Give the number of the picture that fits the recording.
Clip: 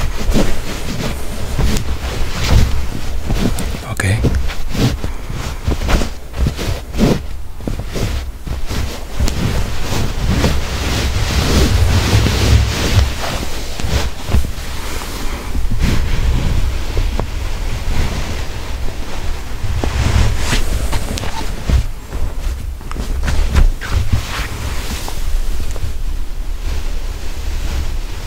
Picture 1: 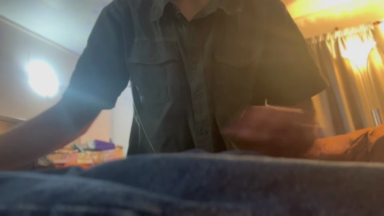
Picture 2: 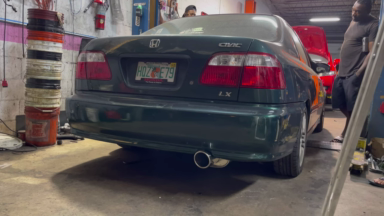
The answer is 1